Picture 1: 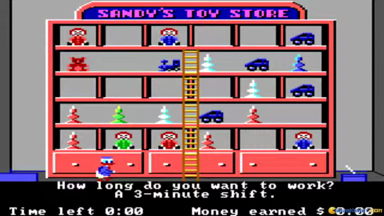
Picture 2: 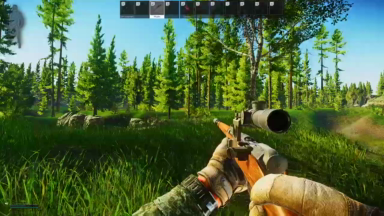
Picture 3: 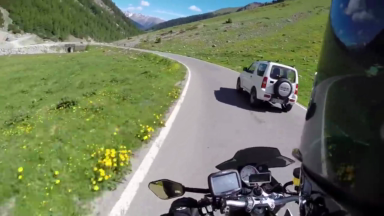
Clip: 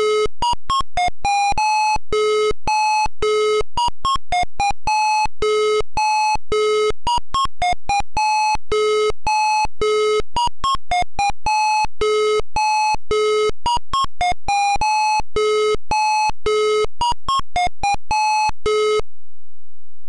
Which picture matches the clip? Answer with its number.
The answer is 1